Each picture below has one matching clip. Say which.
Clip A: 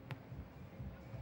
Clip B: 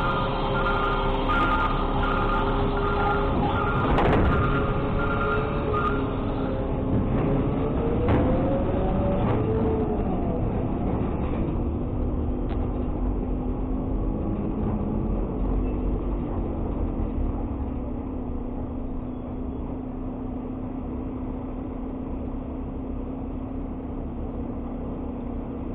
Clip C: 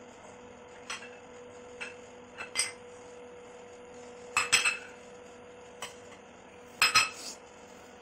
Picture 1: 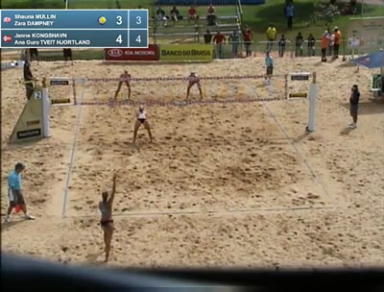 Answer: A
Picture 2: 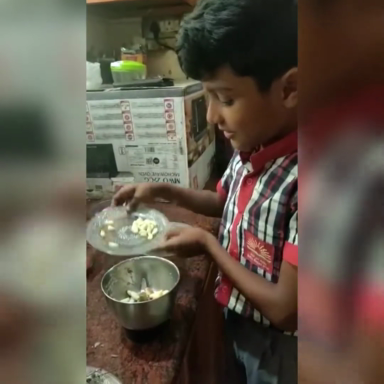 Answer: C